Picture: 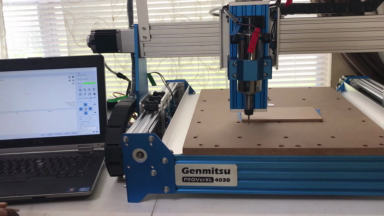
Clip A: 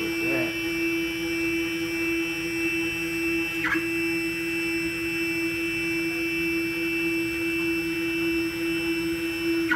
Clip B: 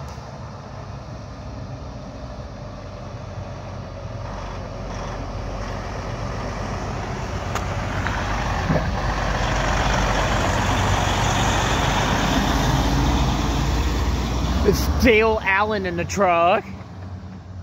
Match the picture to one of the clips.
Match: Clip A